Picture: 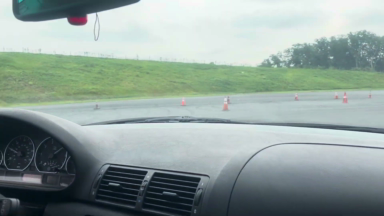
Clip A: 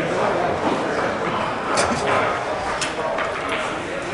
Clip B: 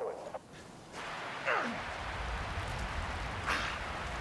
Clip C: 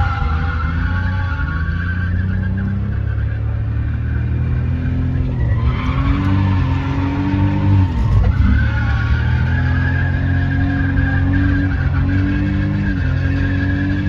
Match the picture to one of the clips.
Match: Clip C